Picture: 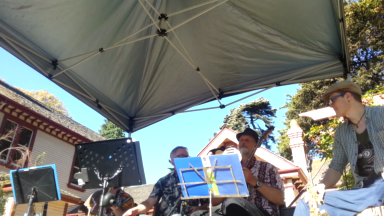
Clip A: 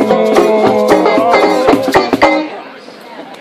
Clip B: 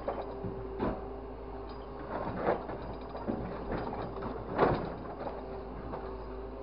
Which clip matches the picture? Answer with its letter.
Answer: A